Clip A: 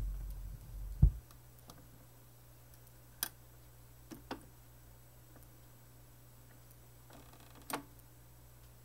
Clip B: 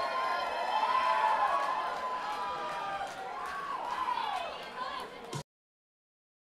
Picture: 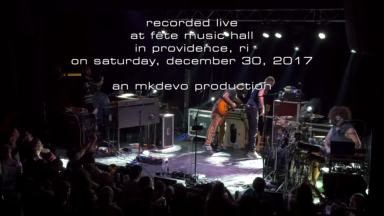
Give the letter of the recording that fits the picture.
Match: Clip B